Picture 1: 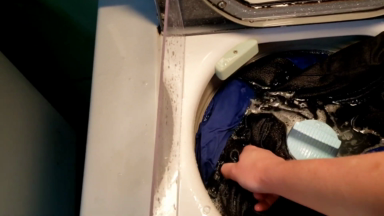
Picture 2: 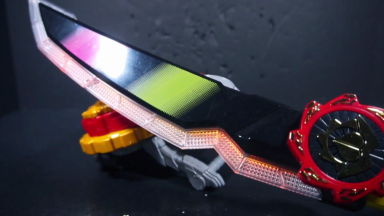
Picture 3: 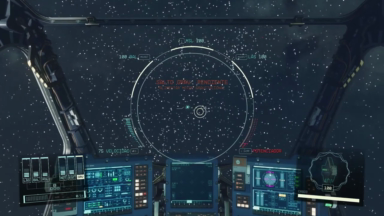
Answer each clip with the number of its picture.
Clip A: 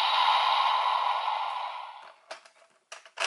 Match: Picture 2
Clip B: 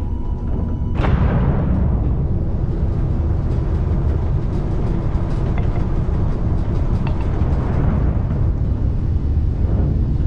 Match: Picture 3